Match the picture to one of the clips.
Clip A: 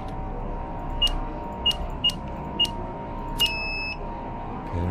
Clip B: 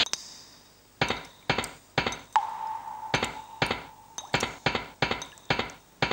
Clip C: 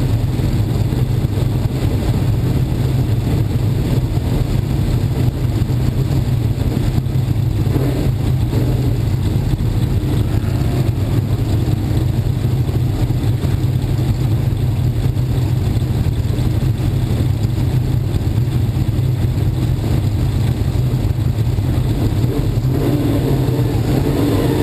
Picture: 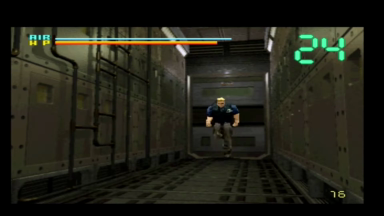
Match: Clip B